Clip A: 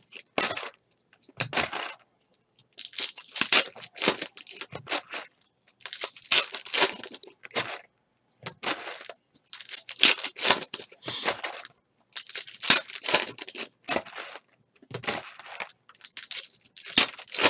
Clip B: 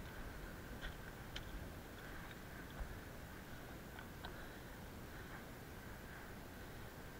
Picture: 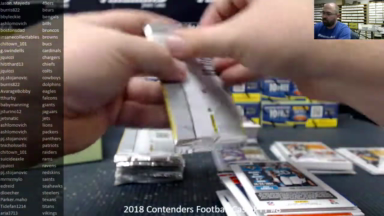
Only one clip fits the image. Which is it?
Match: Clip A